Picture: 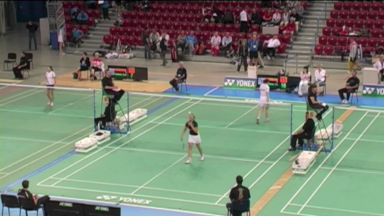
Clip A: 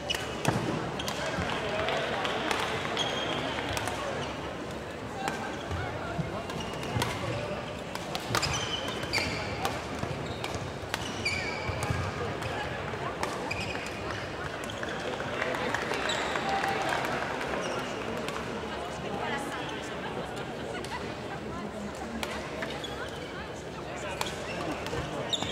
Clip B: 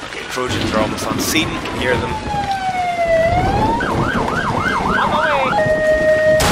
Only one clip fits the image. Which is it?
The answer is A